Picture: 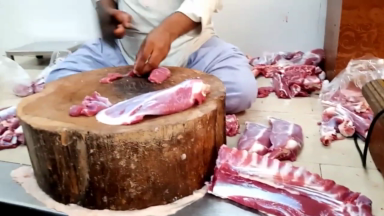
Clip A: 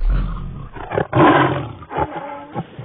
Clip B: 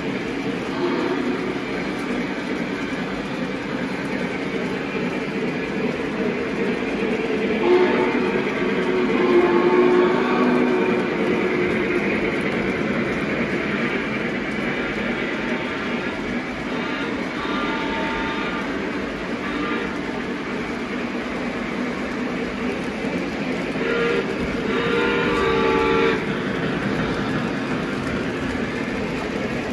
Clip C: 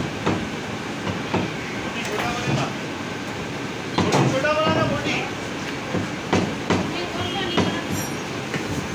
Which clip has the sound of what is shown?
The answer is C